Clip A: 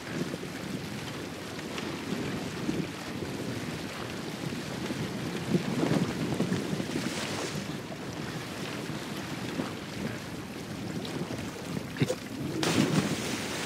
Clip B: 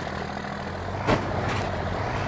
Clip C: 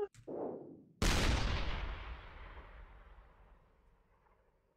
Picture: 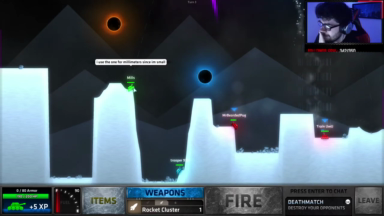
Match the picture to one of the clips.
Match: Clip C